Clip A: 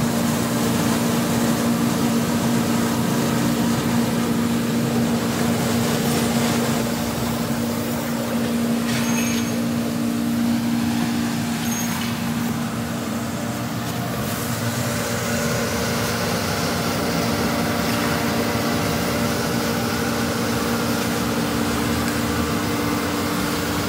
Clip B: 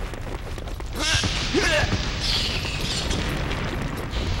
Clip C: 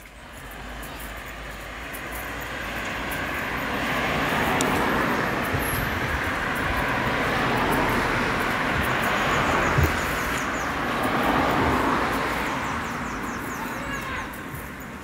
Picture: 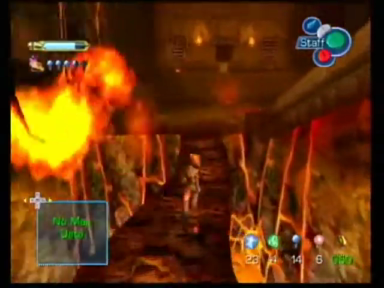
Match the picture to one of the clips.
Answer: B